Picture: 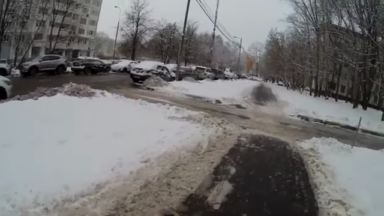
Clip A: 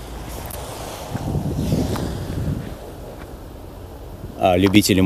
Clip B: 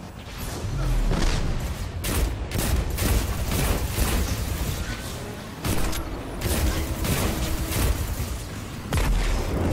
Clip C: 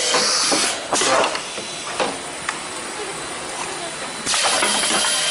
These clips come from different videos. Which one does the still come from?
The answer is A